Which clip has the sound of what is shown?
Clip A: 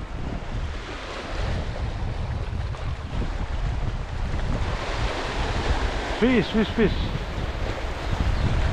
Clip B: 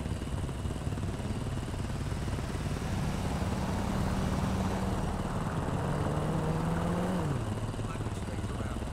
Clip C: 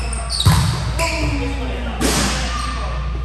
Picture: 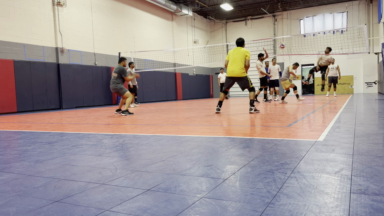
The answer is C